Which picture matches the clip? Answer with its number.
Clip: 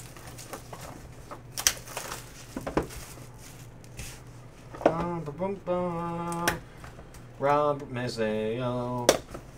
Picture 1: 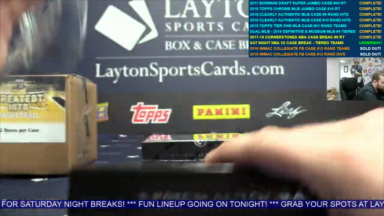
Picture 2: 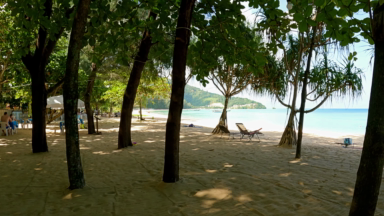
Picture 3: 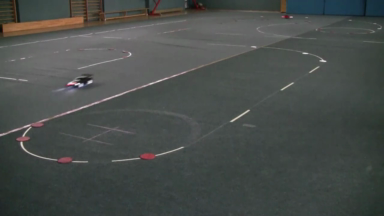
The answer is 1